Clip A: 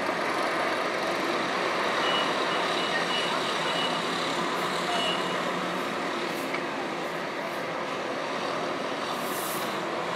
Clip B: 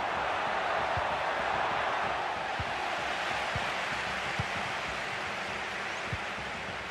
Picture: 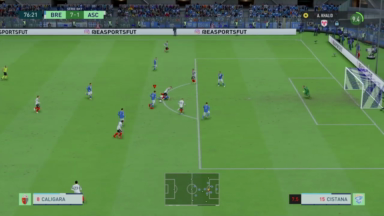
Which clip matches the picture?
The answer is B